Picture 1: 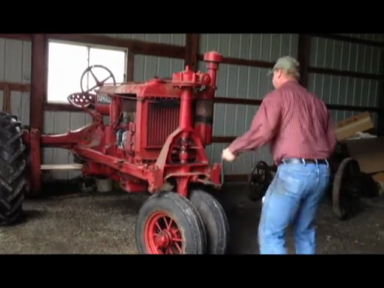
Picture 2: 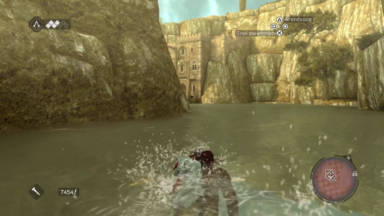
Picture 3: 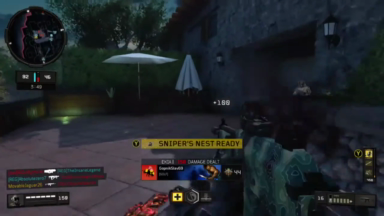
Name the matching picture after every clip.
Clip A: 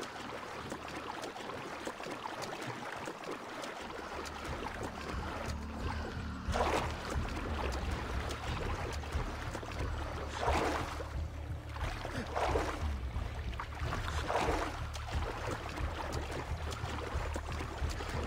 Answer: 2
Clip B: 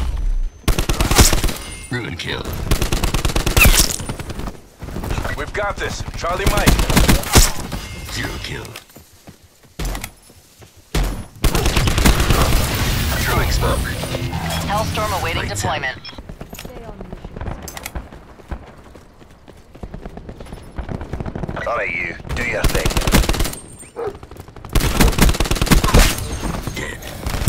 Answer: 3